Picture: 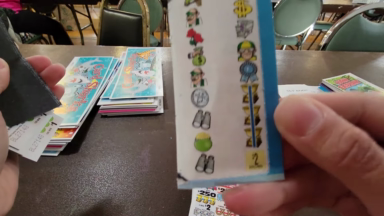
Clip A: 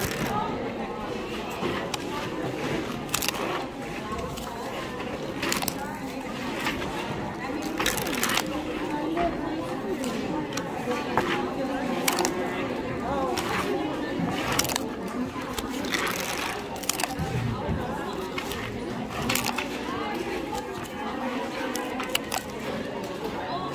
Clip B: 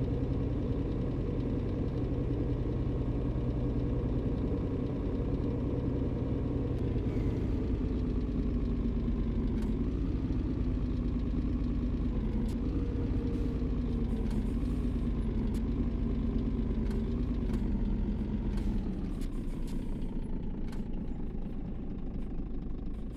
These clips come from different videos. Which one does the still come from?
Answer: A